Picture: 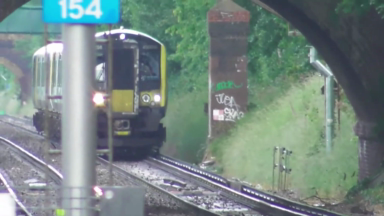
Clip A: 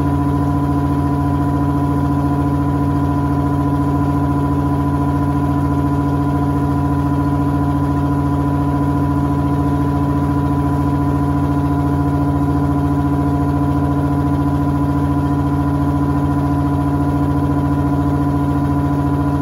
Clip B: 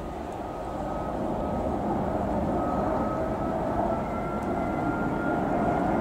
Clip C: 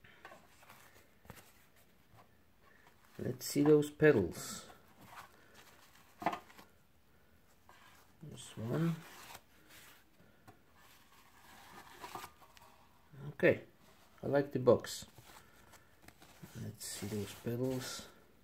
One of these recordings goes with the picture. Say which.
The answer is B